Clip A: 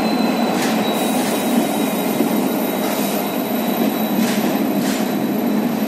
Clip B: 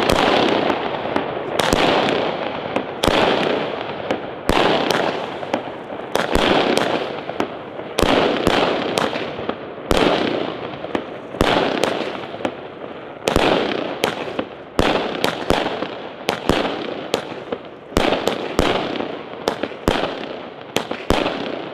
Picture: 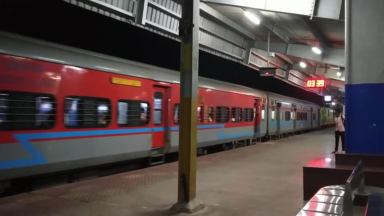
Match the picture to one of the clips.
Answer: A